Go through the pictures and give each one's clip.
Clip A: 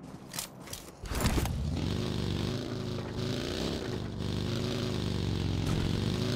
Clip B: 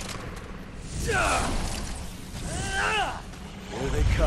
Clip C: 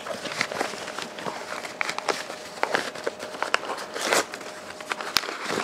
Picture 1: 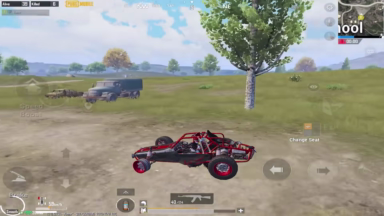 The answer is A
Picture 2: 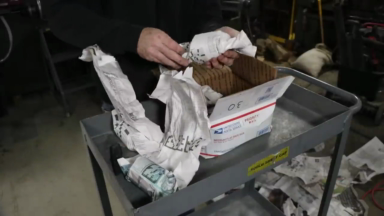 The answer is C